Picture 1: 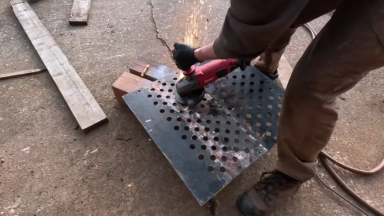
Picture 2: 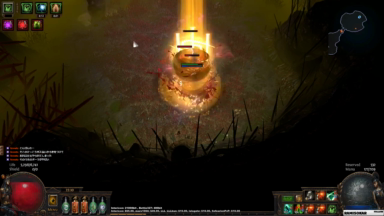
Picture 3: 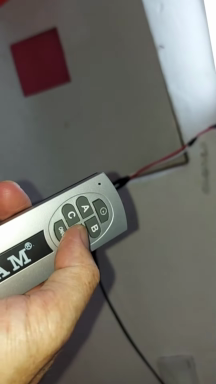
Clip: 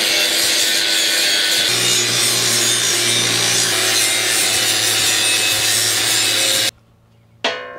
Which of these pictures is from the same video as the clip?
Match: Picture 1